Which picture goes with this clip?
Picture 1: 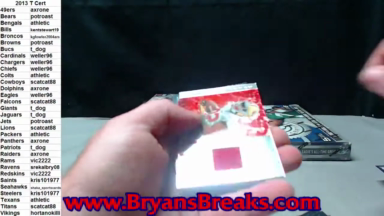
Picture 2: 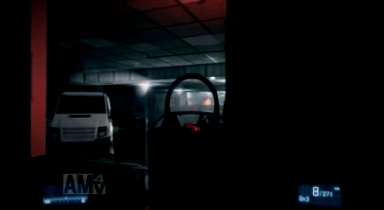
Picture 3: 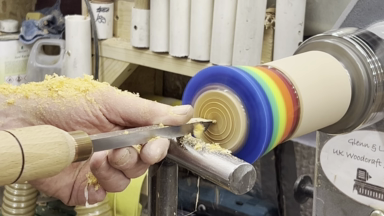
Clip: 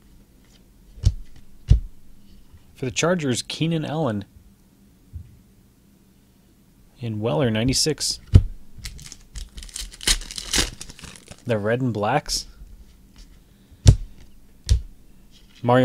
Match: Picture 1